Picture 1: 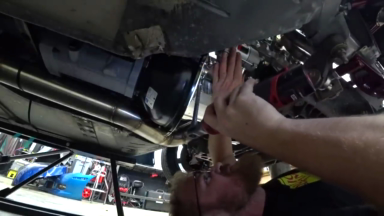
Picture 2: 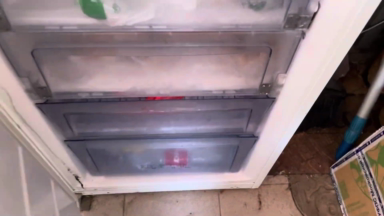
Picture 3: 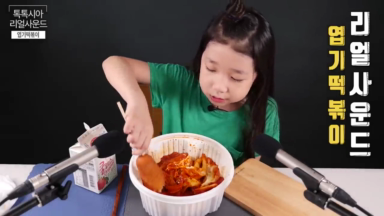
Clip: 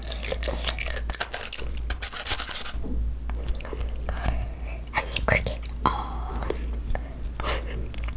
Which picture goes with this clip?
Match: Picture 3